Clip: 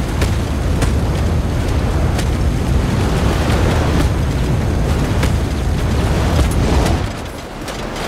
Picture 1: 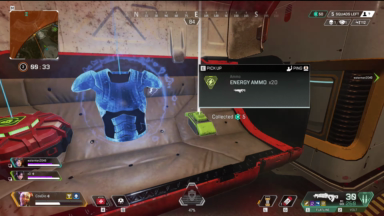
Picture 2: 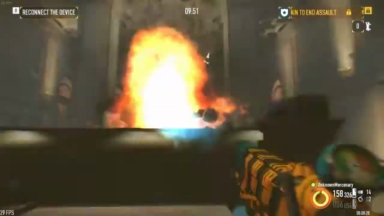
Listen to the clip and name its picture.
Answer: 2